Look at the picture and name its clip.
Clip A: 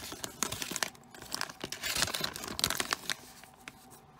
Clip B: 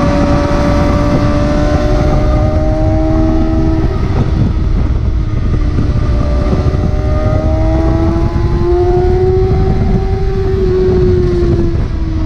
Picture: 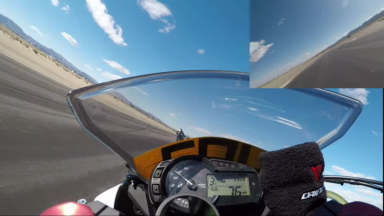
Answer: B